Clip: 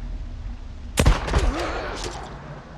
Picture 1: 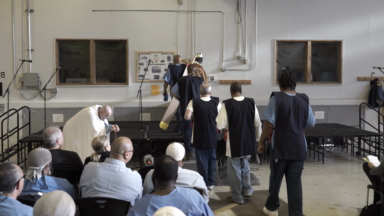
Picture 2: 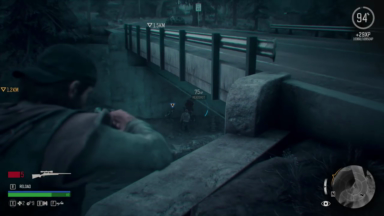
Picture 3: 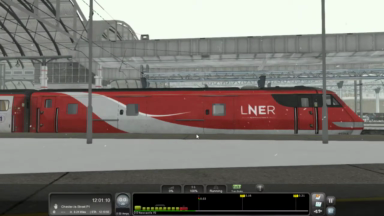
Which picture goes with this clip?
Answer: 2